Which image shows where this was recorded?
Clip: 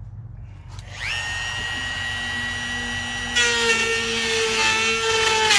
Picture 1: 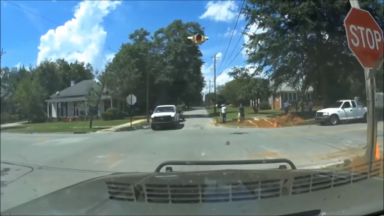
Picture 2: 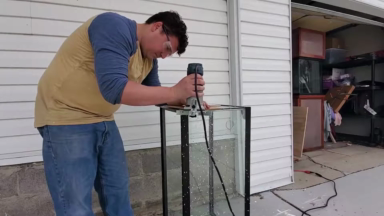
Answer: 2